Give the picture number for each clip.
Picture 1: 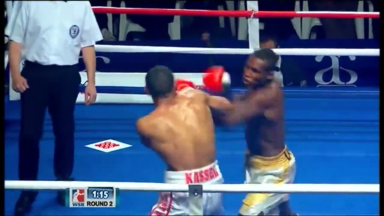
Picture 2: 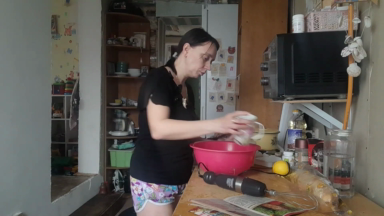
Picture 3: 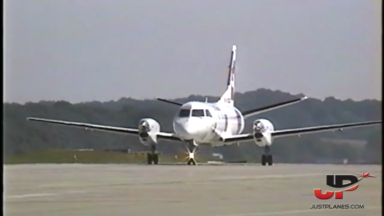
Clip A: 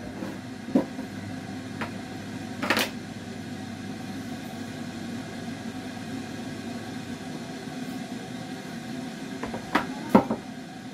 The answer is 2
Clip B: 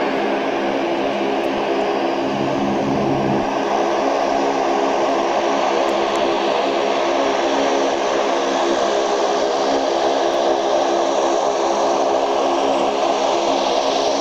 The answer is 3